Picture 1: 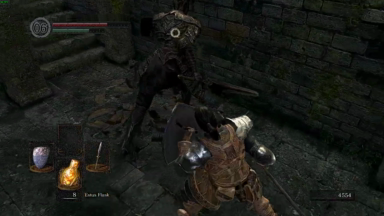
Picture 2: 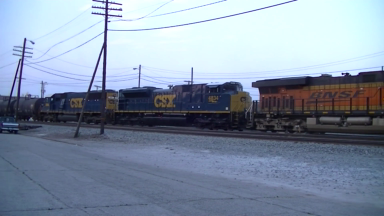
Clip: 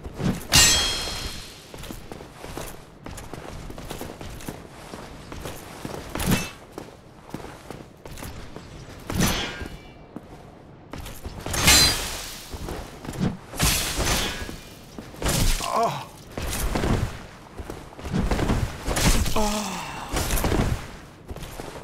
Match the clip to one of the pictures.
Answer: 1